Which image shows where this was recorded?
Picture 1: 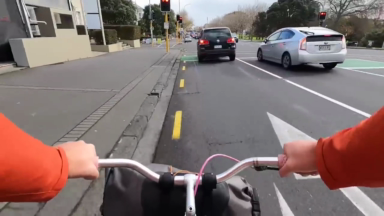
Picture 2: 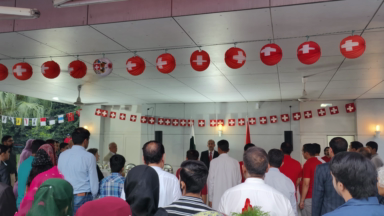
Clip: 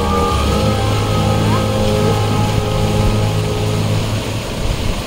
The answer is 2